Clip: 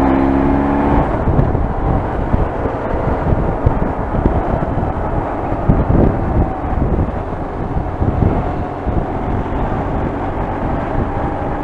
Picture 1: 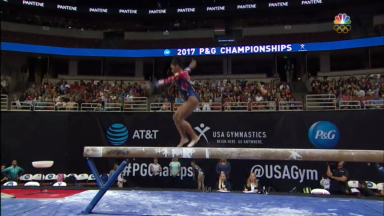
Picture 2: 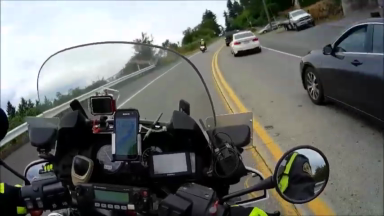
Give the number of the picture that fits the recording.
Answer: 2